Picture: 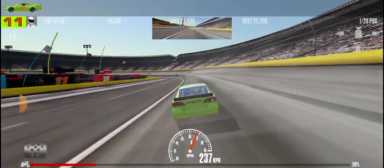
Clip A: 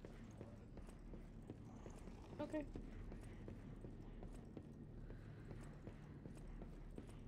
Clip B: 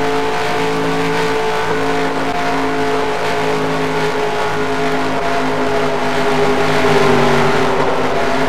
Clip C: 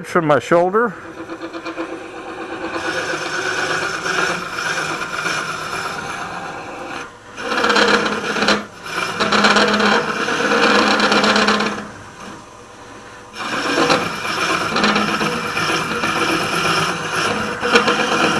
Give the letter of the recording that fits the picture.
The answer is B